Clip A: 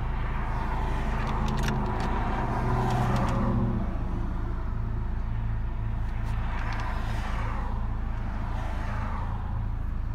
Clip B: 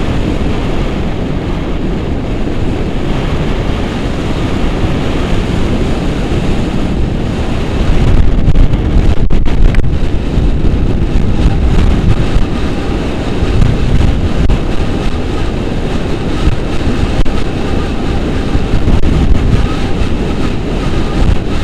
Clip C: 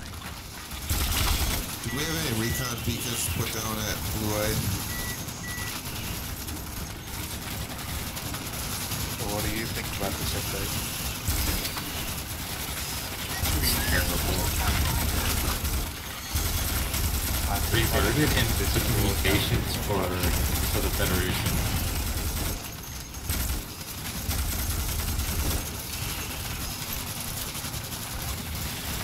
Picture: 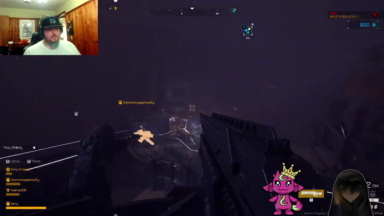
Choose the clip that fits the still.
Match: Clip C